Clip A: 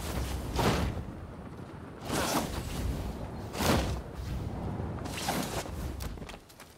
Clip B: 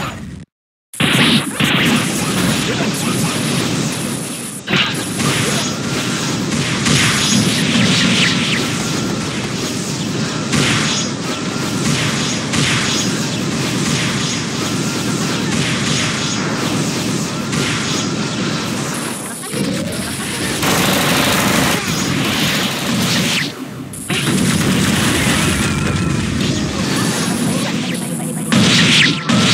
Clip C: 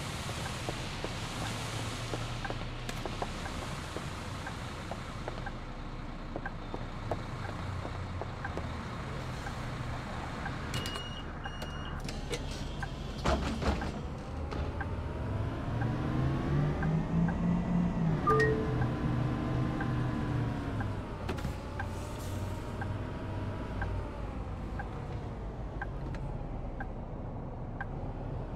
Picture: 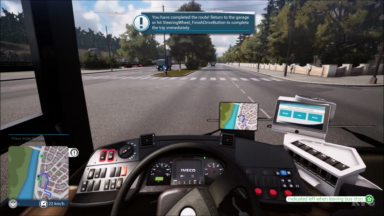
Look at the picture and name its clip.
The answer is C